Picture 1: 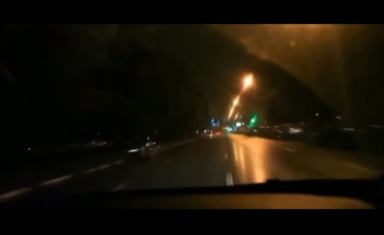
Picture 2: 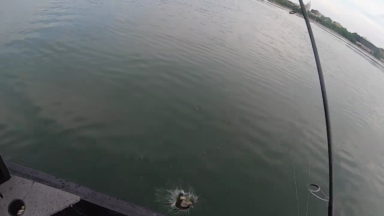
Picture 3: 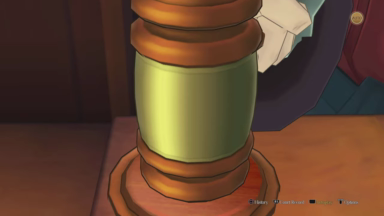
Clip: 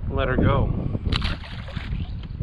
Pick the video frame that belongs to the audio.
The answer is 2